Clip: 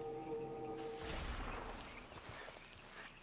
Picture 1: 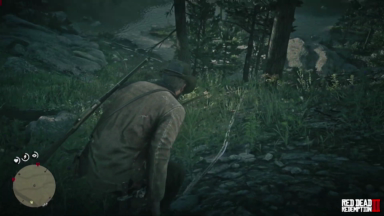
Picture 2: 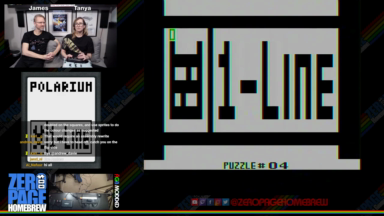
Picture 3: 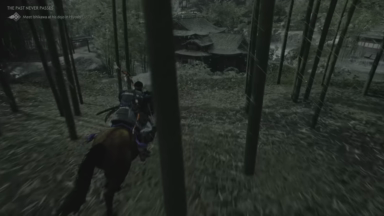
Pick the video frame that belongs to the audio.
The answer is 1